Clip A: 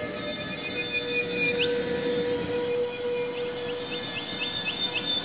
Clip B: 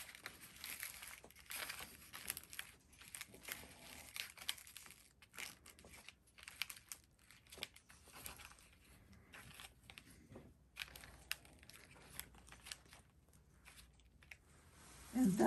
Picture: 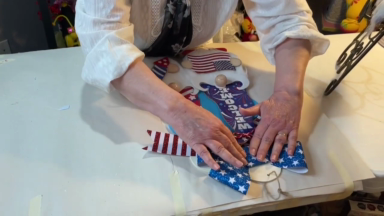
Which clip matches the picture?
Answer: B